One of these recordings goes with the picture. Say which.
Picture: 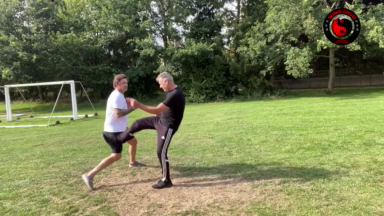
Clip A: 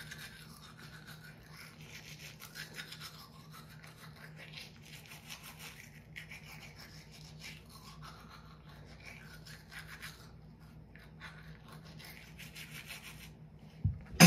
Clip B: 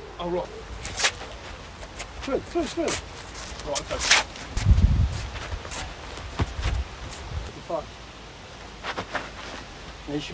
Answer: B